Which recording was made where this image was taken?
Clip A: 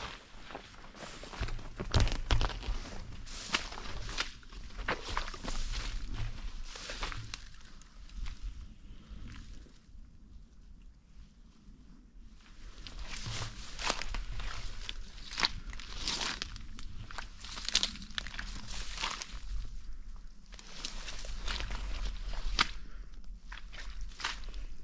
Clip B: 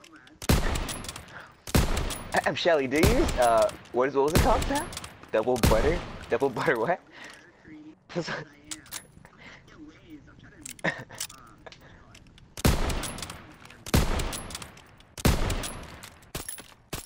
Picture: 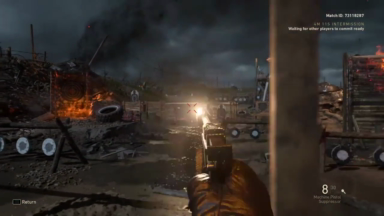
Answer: B